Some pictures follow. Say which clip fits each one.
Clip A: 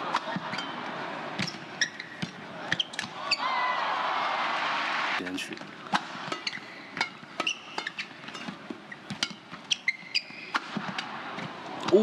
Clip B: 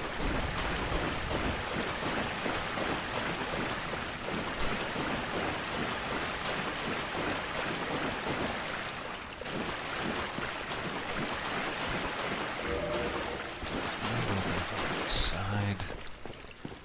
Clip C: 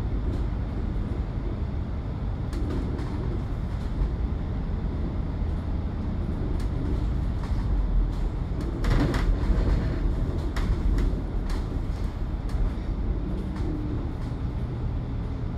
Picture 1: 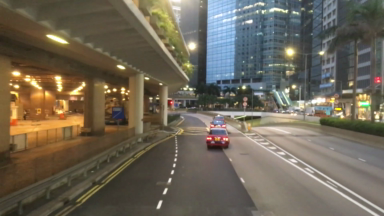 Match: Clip C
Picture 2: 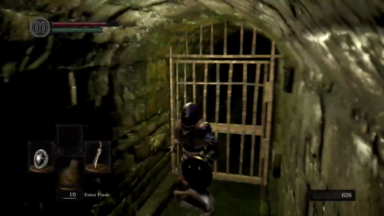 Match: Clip B